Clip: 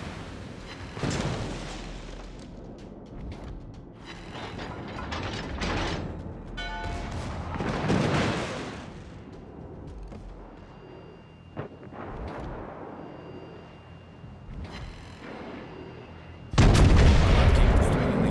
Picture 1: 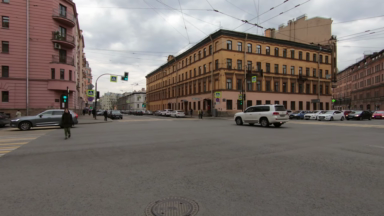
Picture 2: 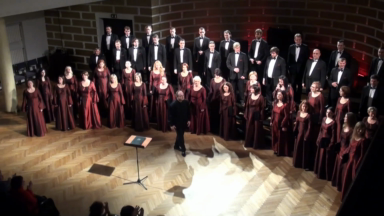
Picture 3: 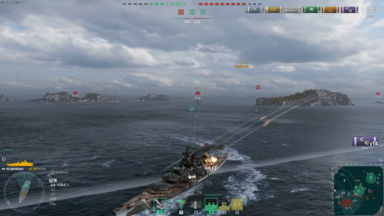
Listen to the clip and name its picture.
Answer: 3